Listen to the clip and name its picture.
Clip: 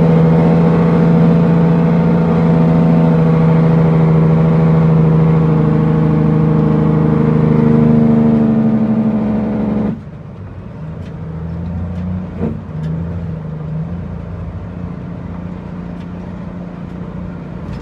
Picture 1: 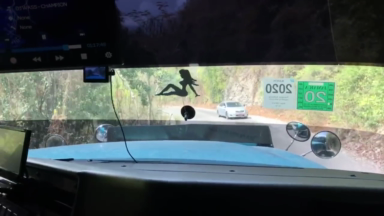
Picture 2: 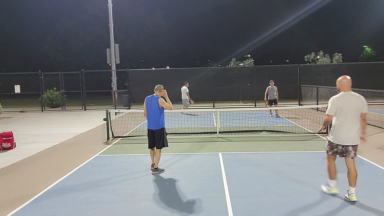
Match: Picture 1